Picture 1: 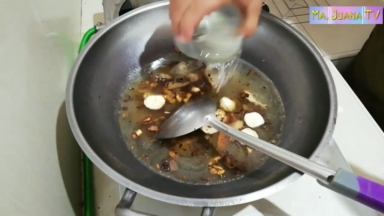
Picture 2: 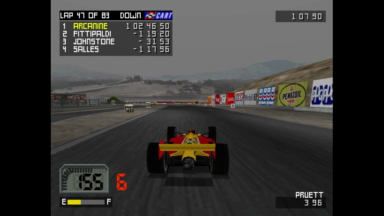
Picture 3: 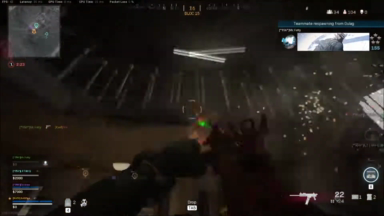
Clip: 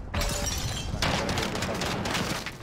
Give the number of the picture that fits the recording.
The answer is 3